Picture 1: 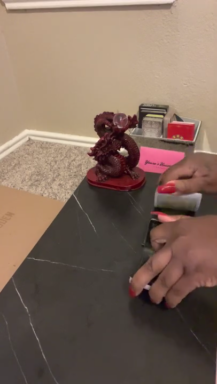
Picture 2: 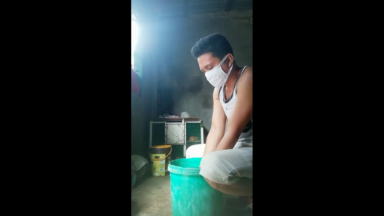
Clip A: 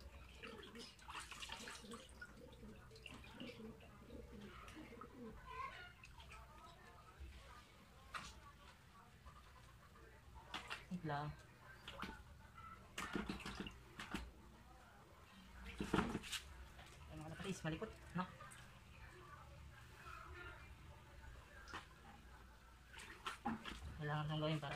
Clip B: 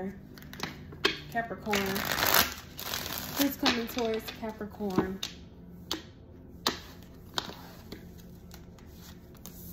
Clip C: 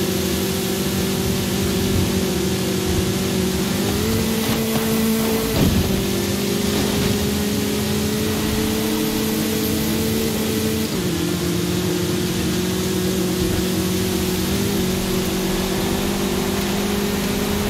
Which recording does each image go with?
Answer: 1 B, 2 A